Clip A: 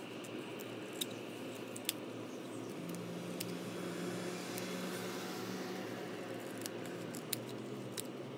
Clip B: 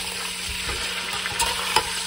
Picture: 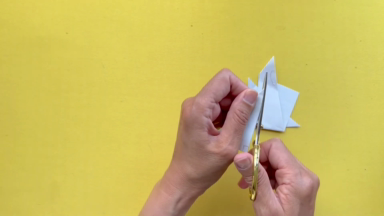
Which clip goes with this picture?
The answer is A